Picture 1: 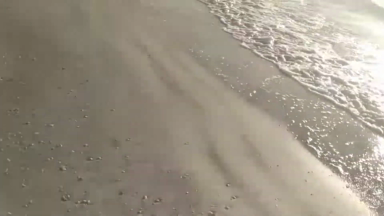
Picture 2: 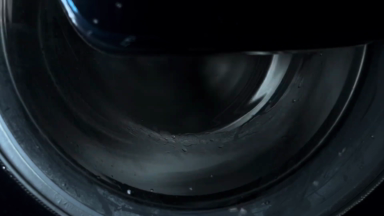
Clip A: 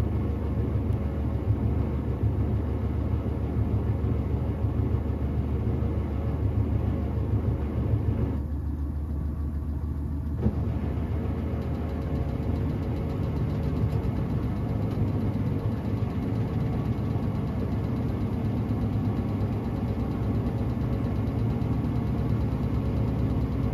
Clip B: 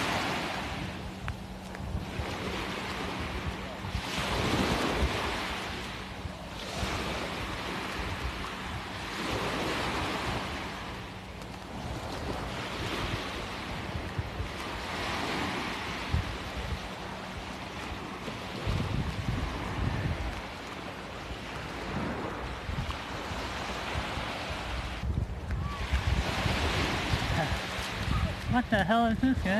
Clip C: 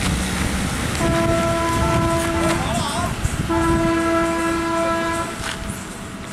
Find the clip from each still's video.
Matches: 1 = B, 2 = A